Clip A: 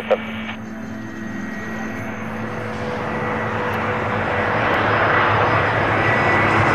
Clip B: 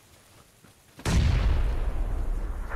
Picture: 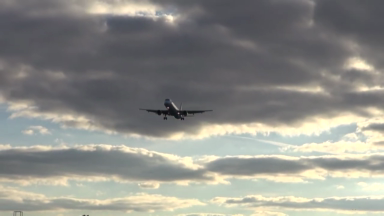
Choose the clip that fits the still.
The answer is A